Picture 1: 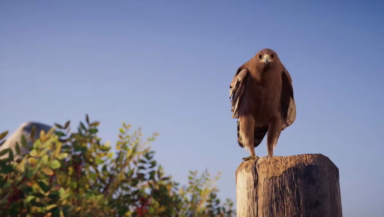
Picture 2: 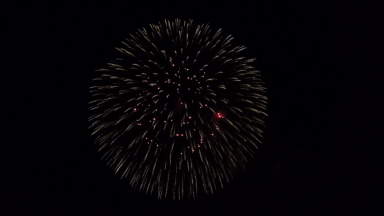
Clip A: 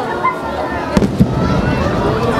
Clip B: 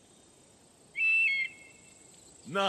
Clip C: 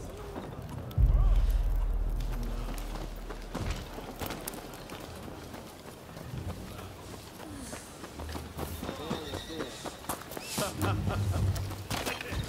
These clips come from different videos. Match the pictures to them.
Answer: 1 B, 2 A